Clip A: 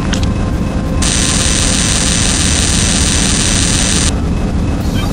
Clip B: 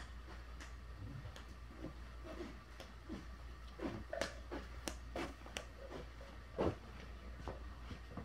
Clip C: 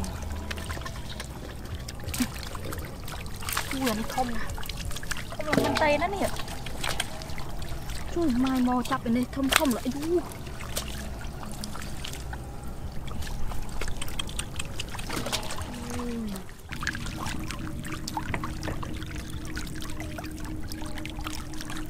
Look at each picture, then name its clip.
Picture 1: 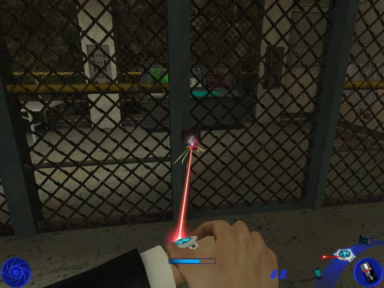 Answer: A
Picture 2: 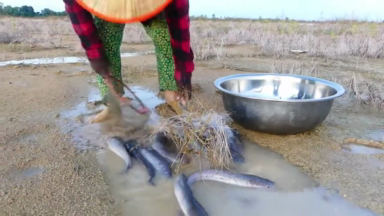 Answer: C